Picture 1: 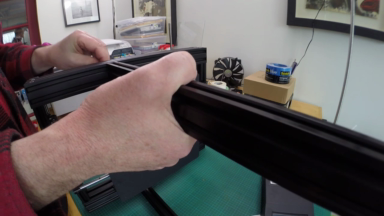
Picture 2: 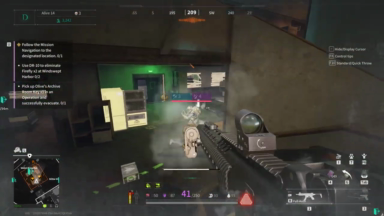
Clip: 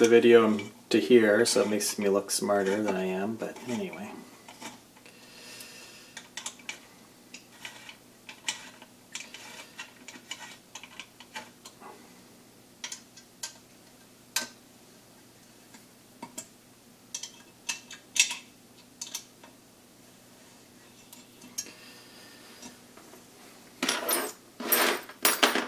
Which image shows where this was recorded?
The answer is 1